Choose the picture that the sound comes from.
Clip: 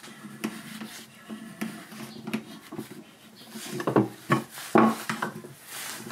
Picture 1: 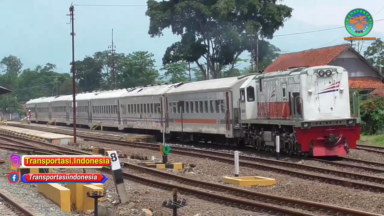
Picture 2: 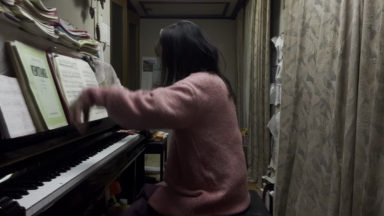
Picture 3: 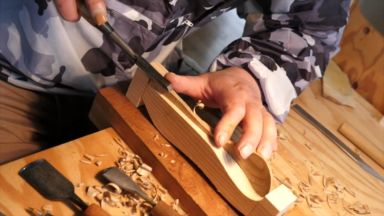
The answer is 3